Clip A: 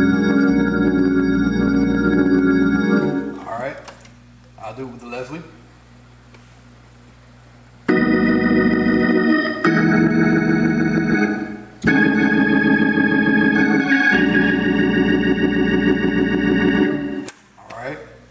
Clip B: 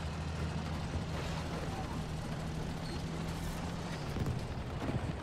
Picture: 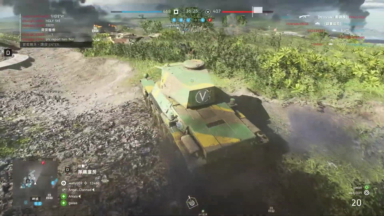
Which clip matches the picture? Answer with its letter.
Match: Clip B